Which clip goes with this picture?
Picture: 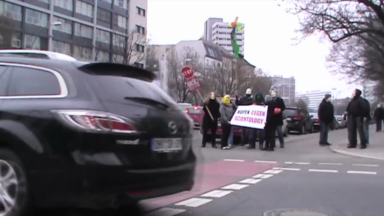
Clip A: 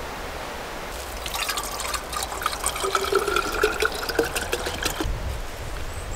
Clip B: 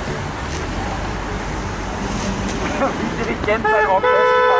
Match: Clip B